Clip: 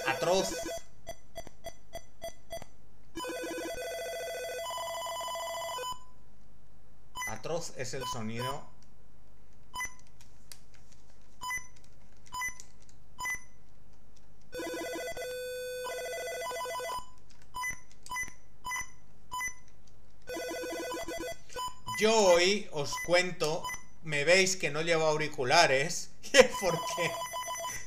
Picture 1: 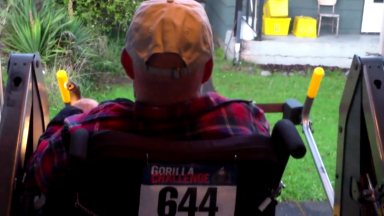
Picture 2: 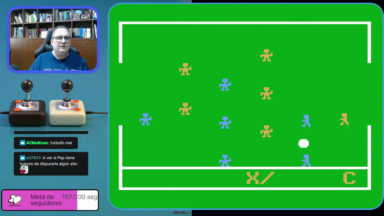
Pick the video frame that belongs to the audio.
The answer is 2